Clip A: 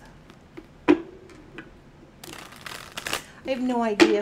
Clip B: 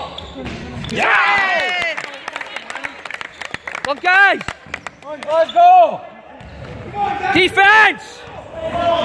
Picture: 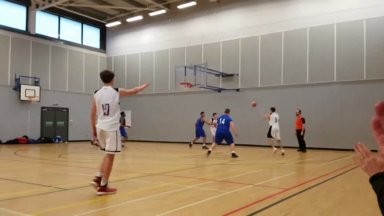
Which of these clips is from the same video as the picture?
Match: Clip B